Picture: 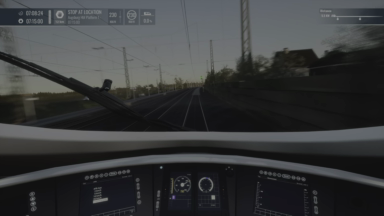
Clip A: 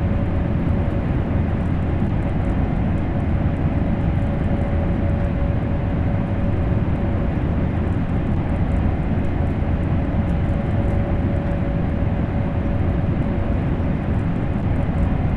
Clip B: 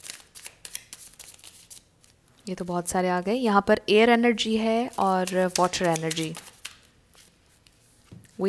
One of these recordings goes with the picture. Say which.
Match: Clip A